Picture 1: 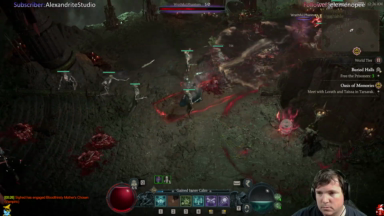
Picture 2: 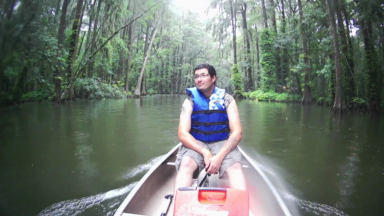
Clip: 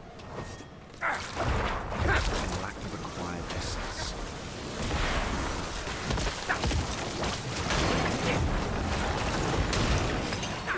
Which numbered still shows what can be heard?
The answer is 1